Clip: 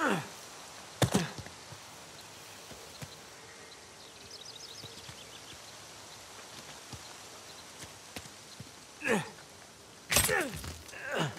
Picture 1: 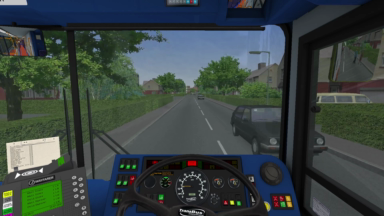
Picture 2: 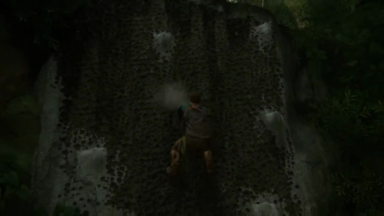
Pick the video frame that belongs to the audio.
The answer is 2